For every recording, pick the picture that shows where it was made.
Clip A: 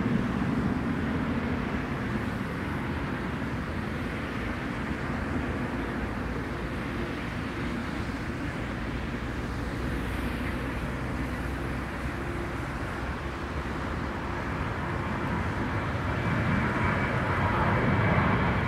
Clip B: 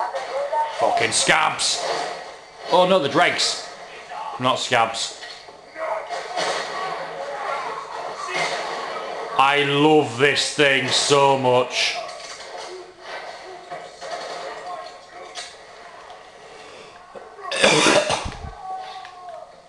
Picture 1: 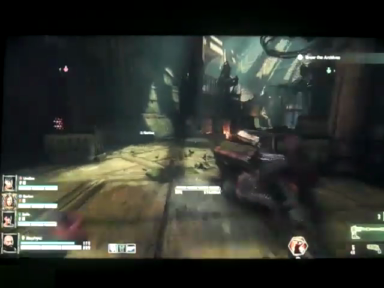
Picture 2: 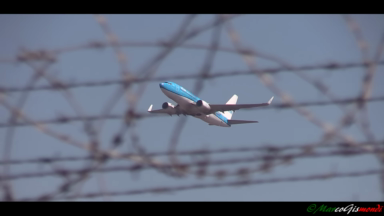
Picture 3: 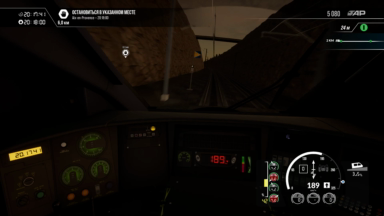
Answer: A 2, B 1